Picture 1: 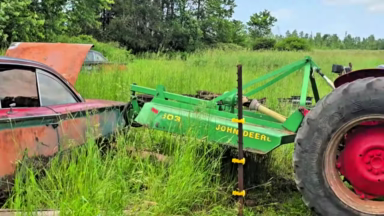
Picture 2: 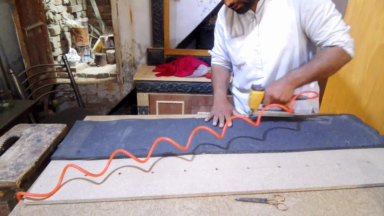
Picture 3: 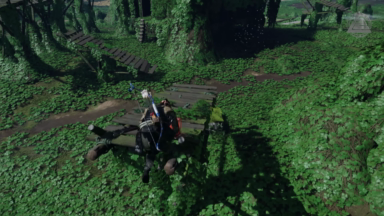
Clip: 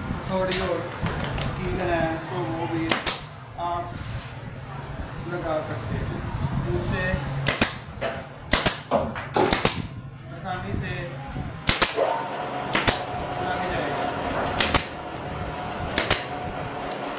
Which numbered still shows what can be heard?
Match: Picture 2